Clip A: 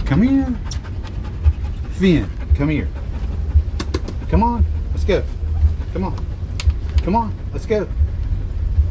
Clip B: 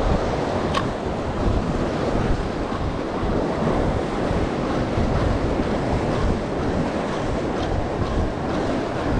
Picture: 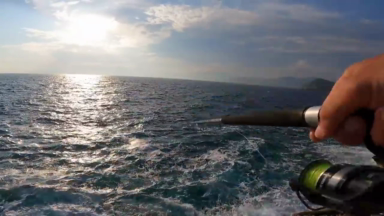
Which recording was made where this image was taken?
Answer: B